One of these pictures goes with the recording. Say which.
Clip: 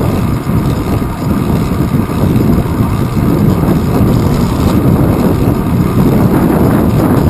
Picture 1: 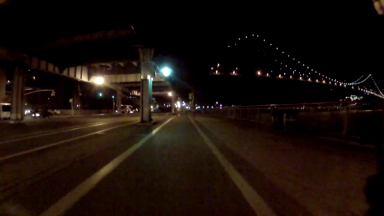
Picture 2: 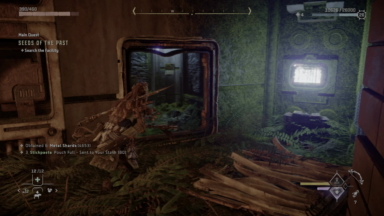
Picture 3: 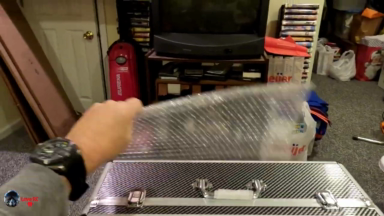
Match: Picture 1